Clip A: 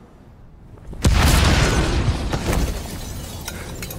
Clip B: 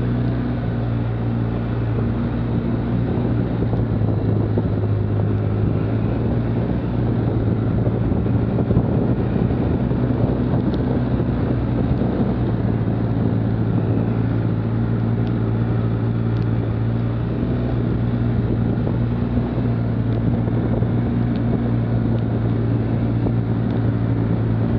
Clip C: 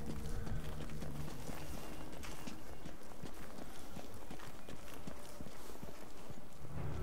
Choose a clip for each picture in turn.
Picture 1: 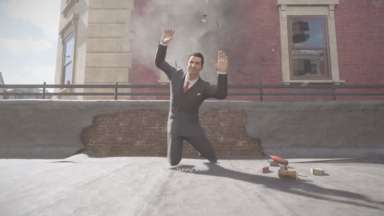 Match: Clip A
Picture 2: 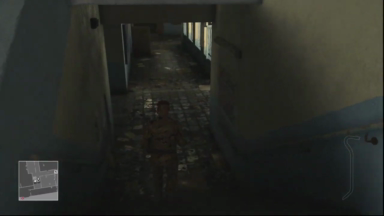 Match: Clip C